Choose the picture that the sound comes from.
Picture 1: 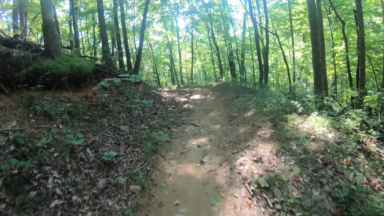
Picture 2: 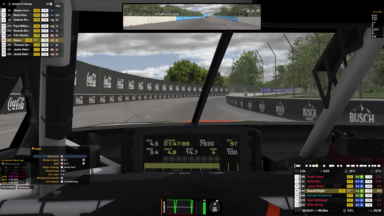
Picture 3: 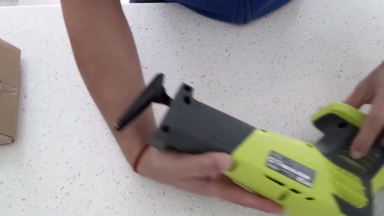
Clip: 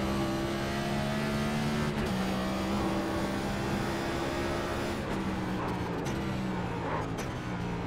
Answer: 2